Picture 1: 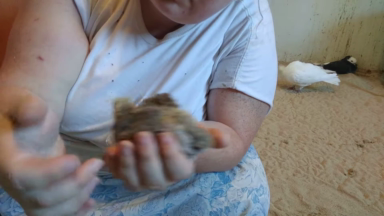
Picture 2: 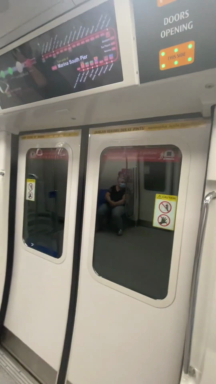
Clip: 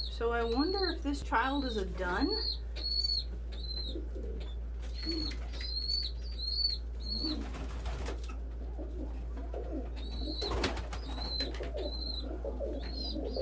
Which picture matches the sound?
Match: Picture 1